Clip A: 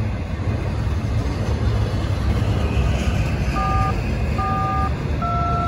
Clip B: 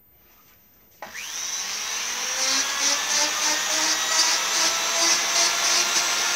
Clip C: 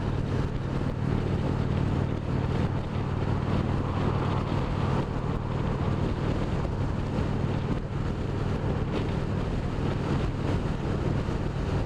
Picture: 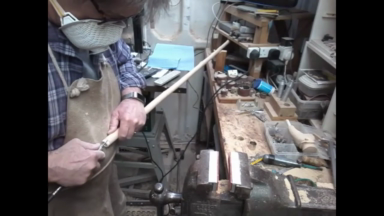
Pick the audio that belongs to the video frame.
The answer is B